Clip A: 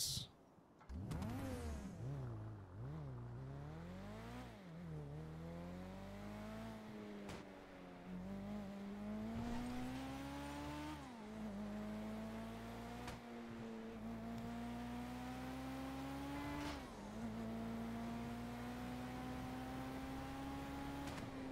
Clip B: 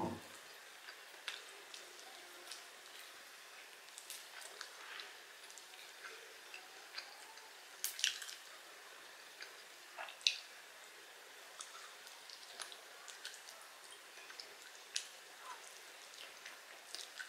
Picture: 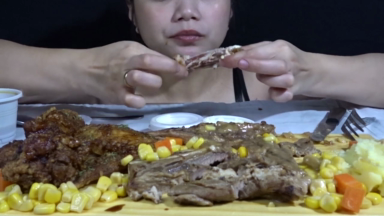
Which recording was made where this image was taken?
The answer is B